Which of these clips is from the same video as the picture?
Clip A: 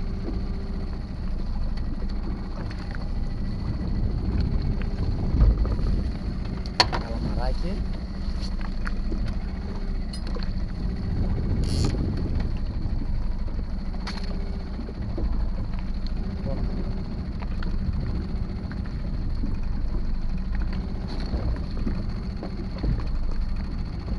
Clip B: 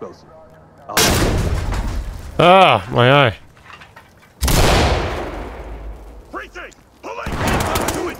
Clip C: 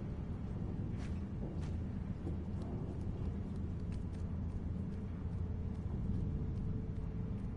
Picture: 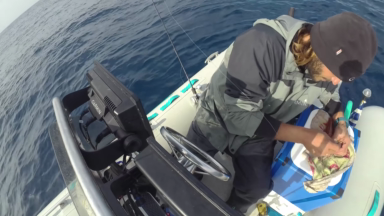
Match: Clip A